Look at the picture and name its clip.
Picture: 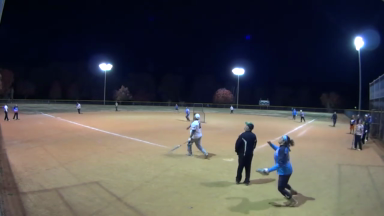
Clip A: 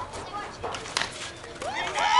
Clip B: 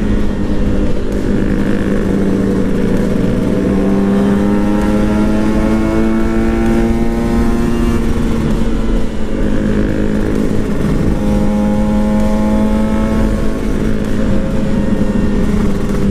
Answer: A